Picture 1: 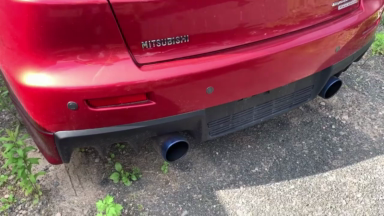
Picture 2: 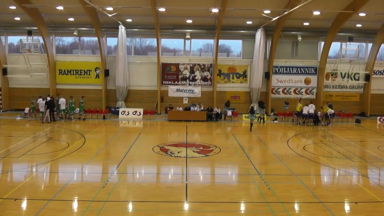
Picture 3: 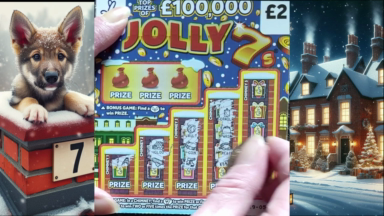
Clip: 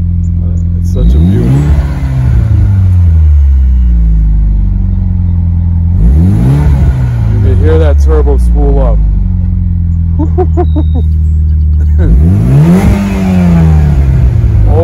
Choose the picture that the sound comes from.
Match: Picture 1